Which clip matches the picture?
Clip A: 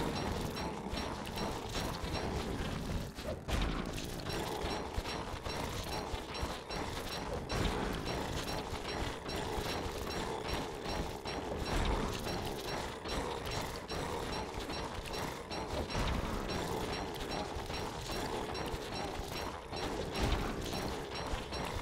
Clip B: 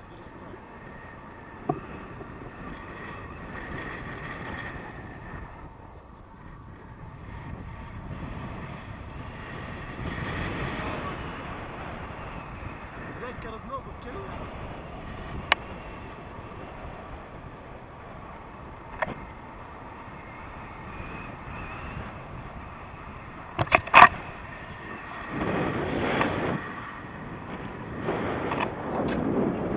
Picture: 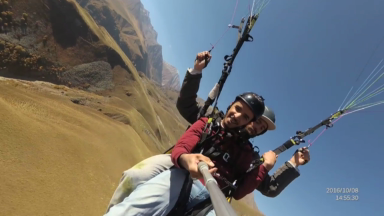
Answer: B